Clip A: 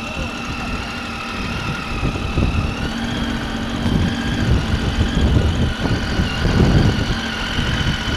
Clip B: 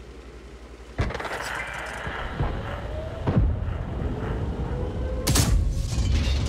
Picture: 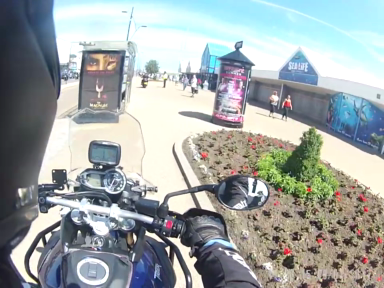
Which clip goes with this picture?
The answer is A